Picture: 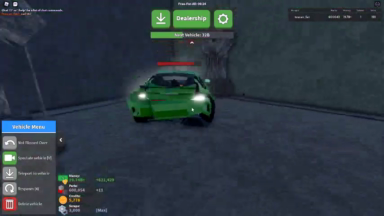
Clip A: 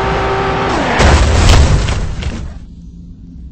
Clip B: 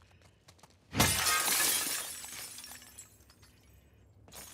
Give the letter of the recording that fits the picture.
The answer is A